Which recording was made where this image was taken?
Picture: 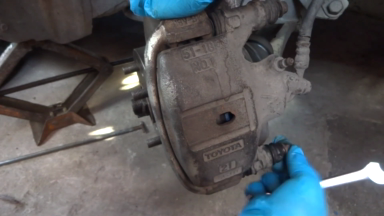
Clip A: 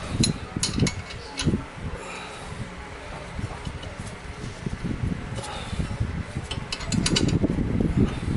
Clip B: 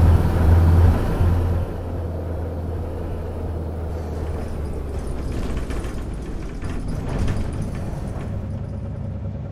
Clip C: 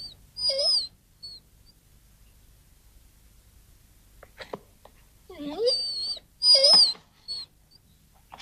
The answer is A